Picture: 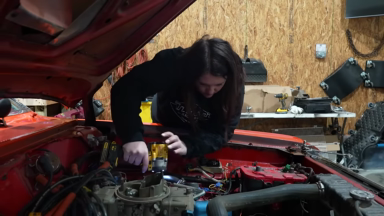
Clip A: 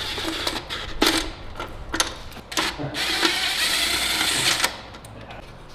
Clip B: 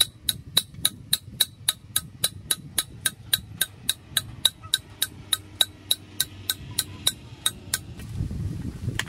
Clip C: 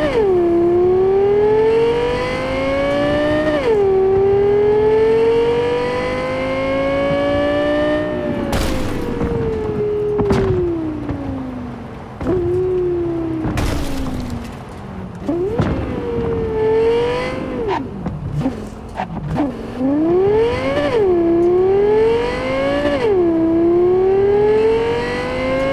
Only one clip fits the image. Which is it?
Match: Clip A